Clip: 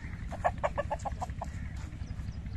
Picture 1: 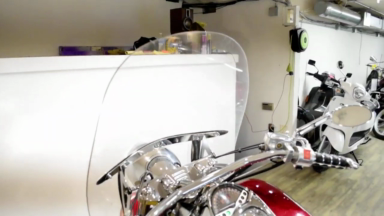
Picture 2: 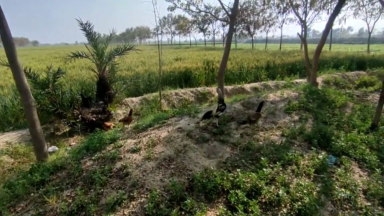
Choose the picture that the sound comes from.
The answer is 2